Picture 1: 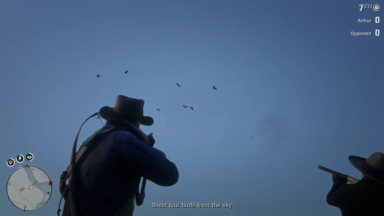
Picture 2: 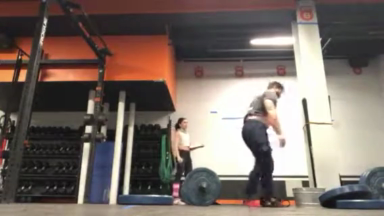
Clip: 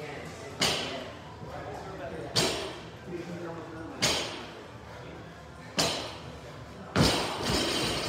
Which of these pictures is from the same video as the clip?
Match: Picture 2